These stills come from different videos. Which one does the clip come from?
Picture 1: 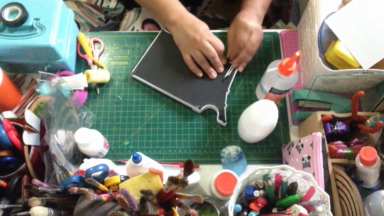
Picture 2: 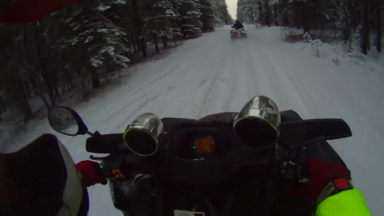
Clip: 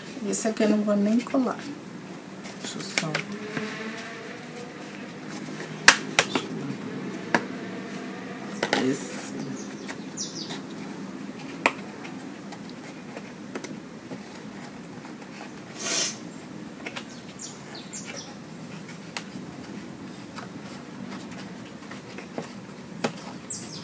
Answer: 1